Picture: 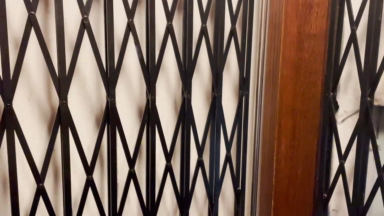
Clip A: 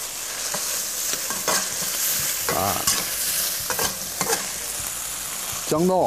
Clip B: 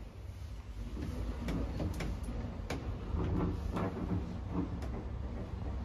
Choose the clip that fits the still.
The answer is B